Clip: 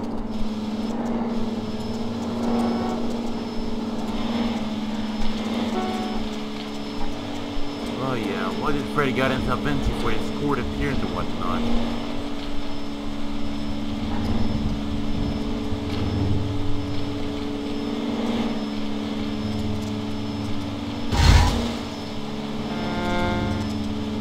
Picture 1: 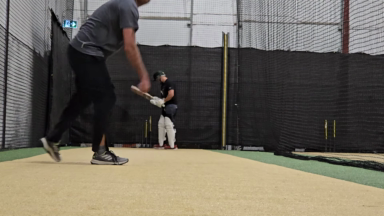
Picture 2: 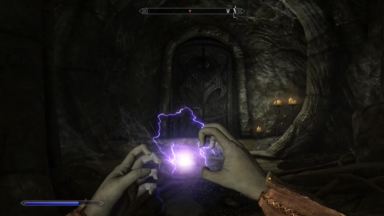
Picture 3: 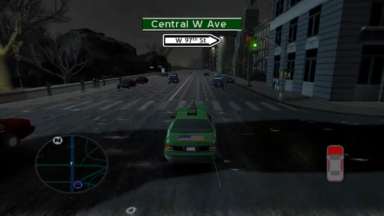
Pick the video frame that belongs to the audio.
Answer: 3